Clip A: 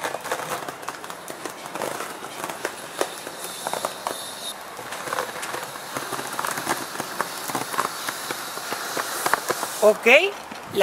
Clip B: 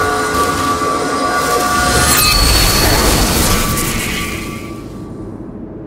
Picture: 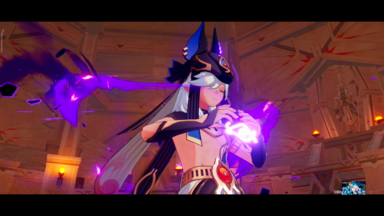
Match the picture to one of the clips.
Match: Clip B